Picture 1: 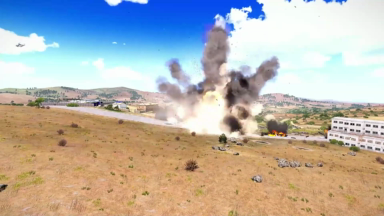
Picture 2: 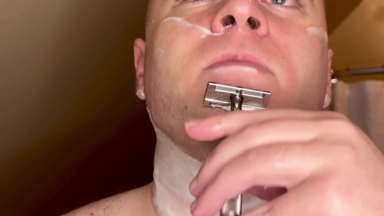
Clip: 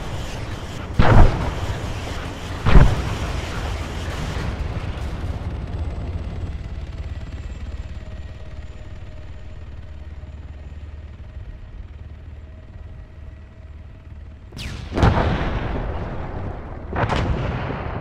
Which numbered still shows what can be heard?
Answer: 1